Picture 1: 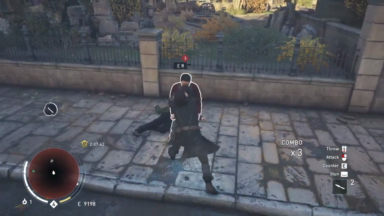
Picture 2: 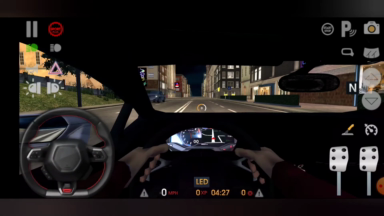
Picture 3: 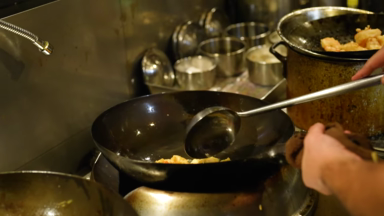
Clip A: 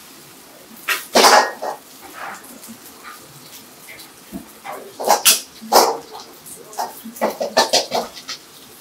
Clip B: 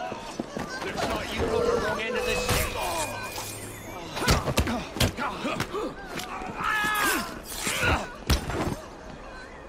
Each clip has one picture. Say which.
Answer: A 3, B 1